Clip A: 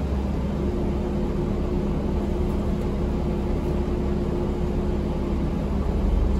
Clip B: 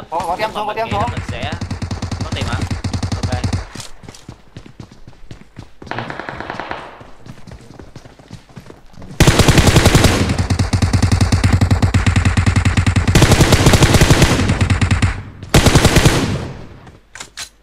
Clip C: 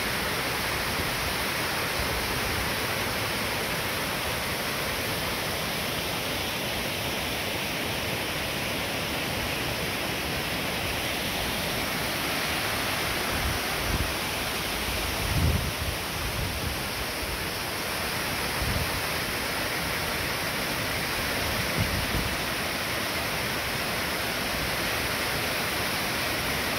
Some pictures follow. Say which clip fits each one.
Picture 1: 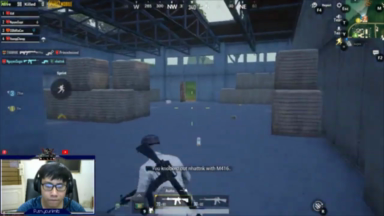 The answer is B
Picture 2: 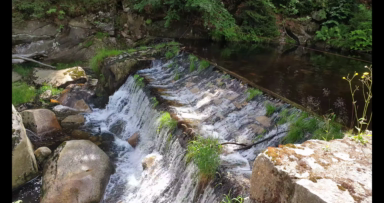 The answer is C